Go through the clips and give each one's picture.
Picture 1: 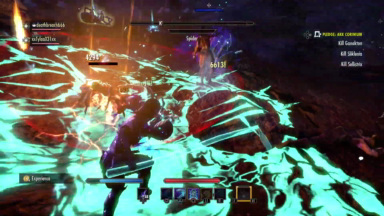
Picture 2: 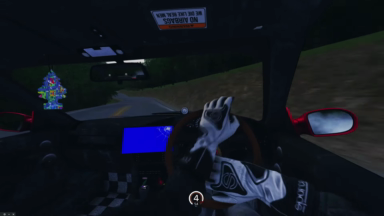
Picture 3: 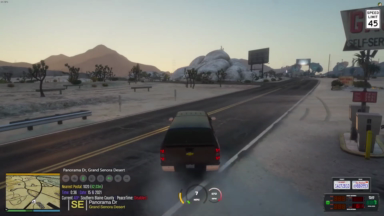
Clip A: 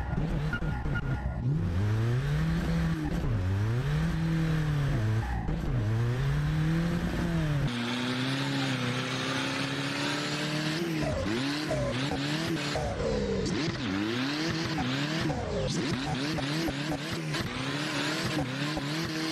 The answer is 2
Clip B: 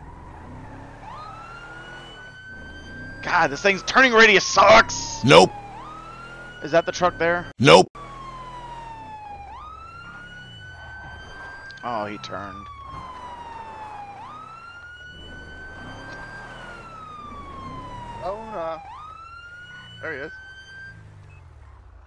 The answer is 3